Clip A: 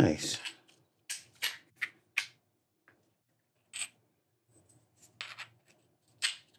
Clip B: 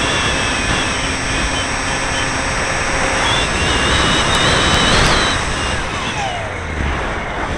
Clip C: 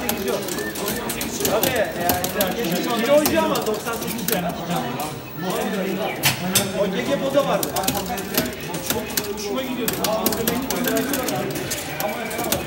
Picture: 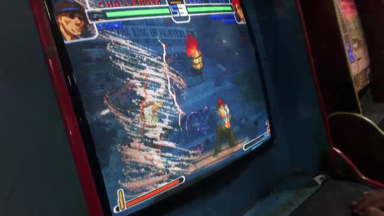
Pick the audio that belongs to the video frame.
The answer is C